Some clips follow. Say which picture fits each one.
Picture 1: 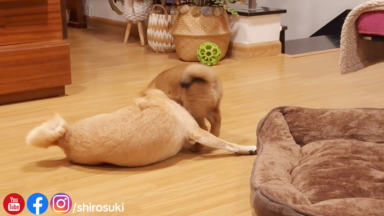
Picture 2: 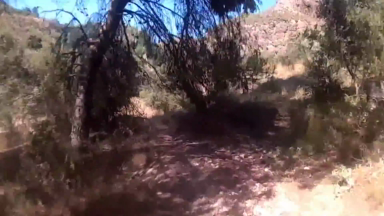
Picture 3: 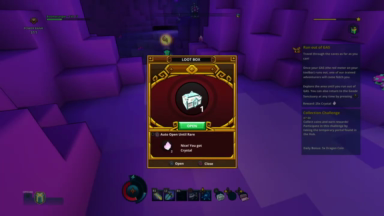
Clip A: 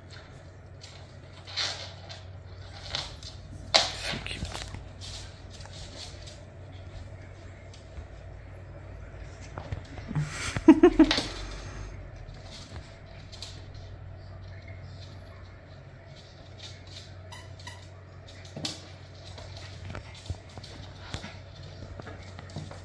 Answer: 1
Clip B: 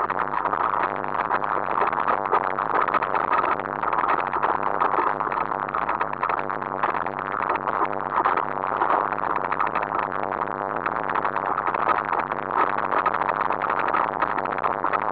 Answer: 2